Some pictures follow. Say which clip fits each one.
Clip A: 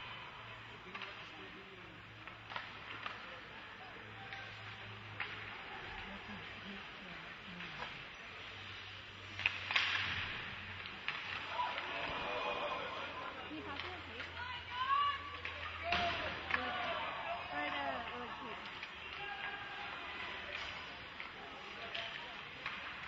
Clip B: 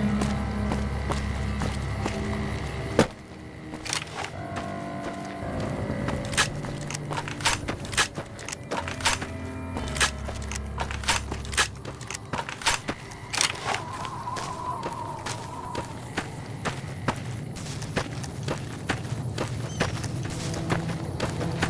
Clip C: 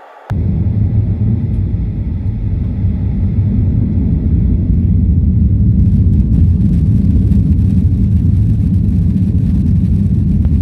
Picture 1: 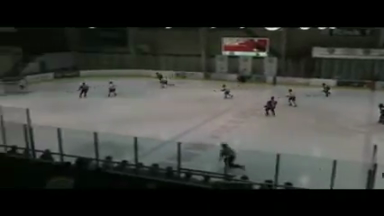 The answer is A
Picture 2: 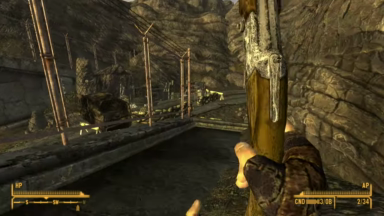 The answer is B